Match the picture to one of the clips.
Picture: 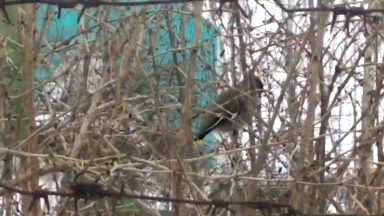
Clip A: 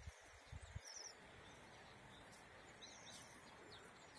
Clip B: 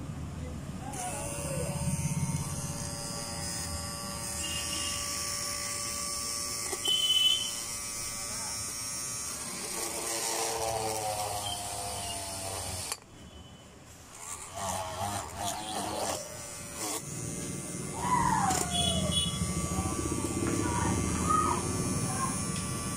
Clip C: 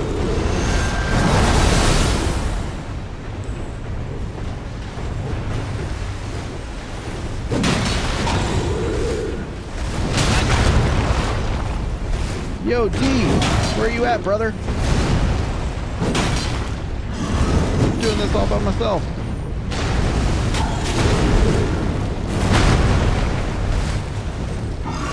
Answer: A